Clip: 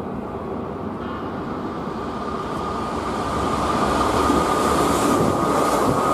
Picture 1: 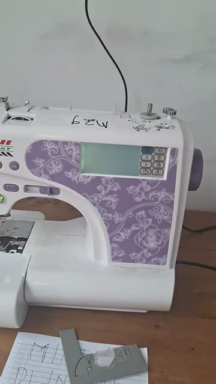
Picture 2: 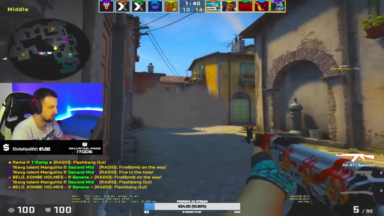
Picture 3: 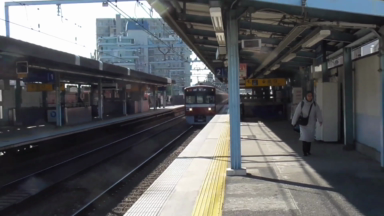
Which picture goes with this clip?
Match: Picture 3